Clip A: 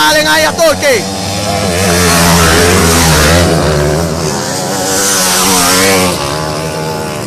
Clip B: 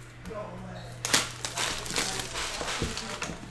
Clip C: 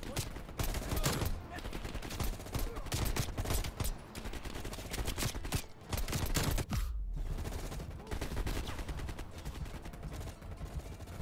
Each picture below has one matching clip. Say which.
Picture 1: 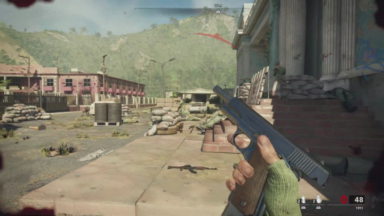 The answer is C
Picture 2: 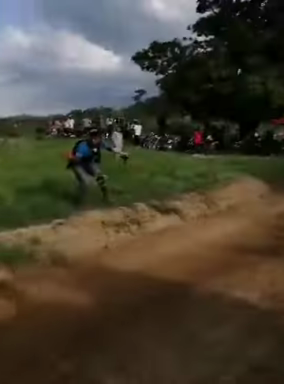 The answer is A